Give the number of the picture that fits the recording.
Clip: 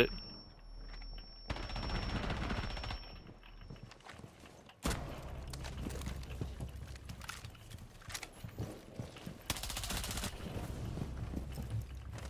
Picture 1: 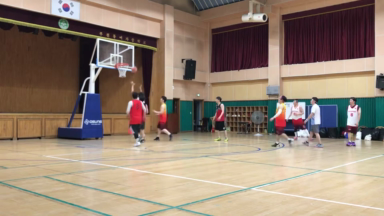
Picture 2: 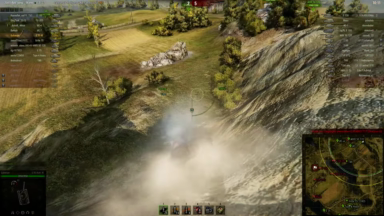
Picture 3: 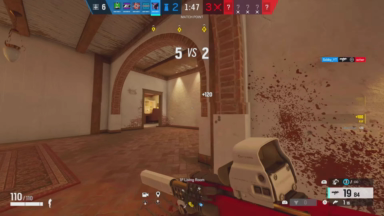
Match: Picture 3